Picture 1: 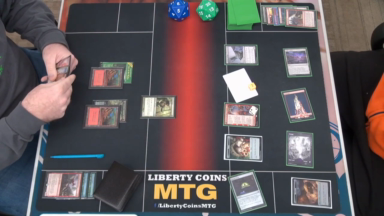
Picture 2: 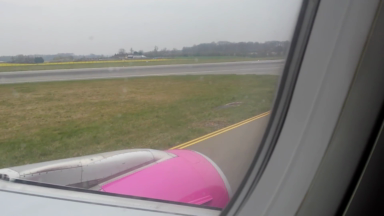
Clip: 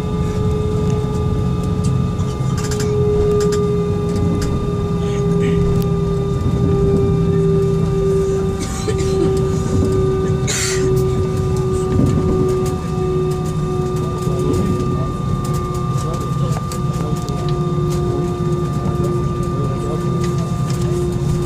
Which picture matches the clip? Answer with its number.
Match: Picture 2